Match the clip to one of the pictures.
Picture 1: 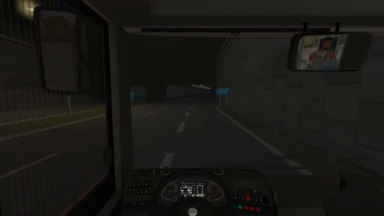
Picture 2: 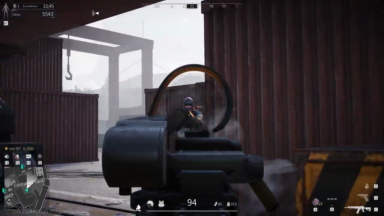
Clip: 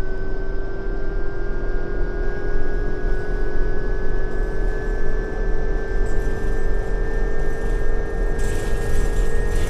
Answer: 1